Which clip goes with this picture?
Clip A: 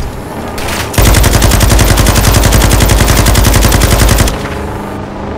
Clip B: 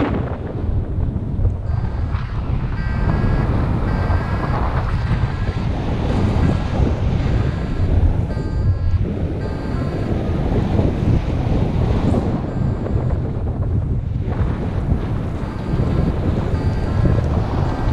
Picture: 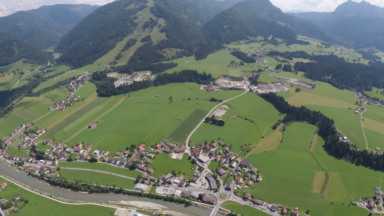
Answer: B